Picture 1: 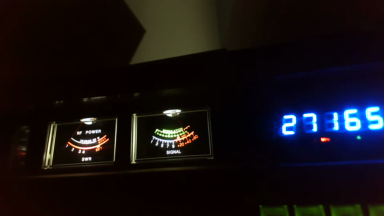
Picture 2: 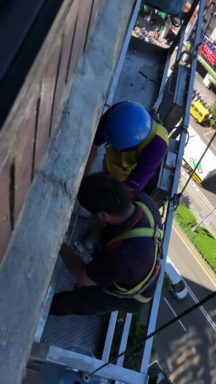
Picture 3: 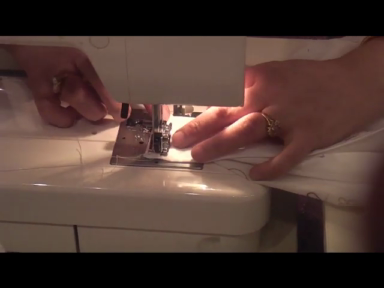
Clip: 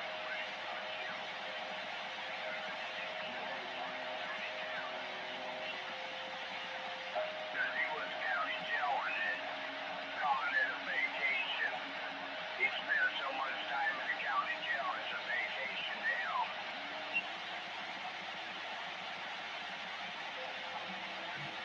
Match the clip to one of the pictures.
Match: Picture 1